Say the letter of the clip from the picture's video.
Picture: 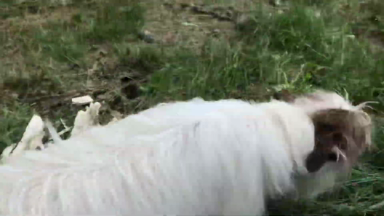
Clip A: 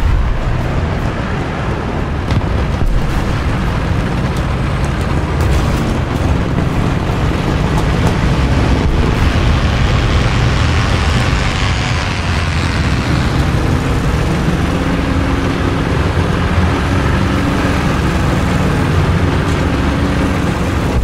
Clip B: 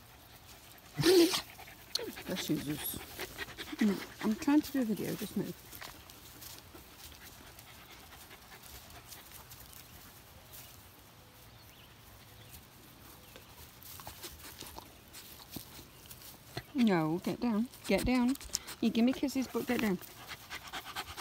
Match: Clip B